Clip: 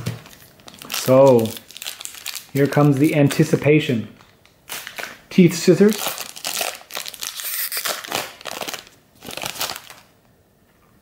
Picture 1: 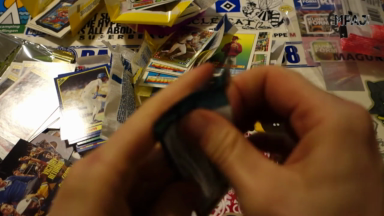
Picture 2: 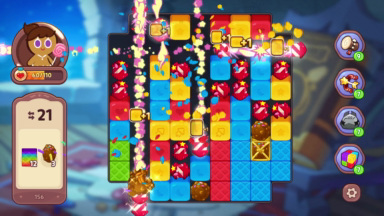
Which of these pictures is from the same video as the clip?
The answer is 1